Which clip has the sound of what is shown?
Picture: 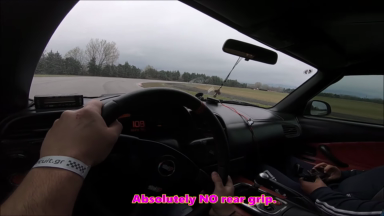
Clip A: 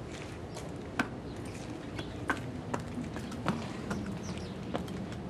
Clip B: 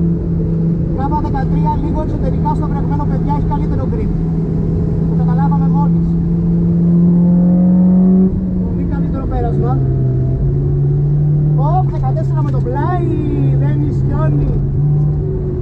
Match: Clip B